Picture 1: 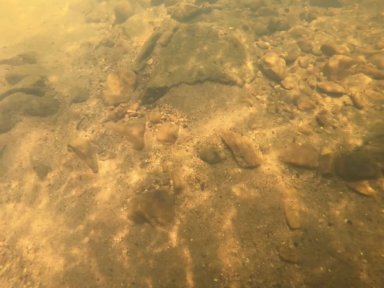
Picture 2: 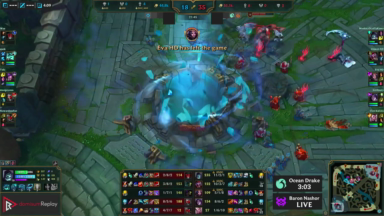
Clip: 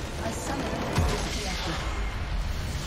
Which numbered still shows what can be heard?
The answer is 2